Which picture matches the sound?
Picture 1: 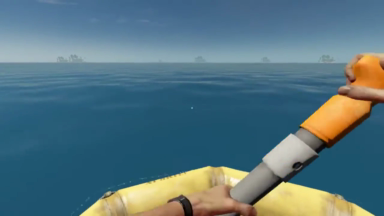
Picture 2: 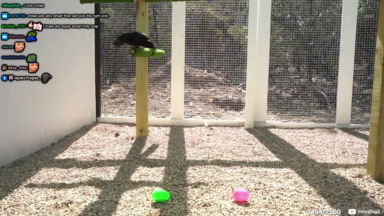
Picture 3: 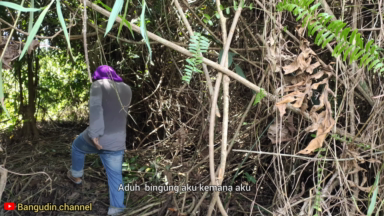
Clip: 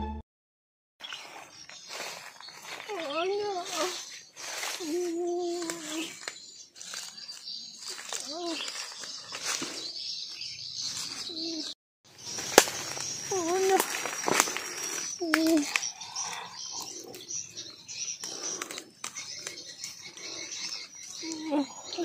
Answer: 3